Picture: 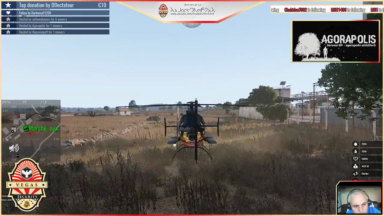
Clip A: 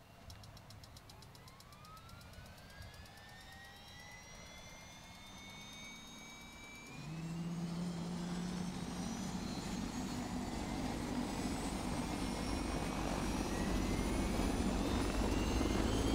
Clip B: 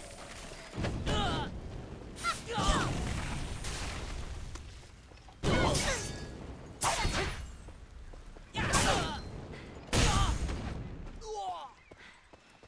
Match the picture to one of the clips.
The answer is A